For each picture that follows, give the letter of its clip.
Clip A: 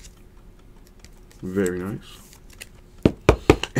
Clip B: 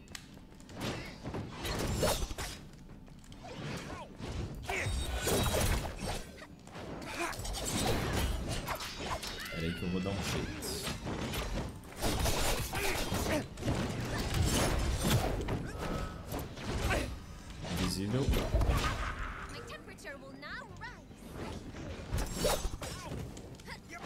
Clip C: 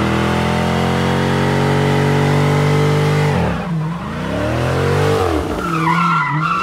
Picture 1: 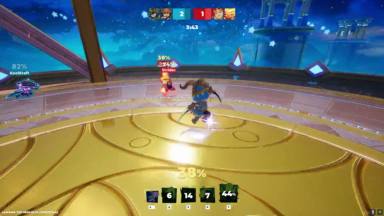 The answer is B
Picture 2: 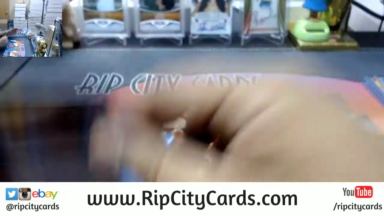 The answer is A